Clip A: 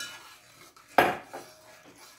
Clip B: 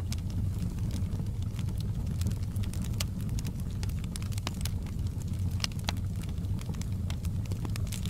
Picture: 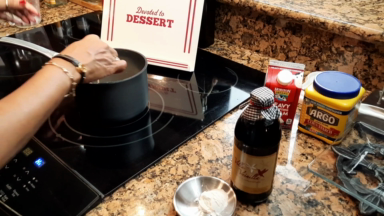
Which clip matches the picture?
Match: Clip A